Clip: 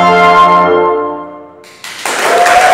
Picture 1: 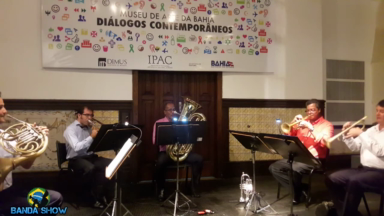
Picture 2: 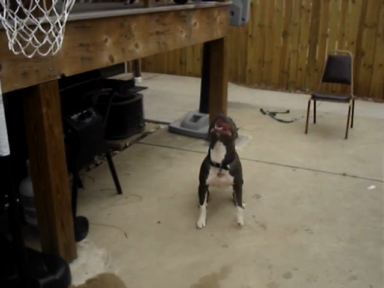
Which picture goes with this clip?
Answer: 1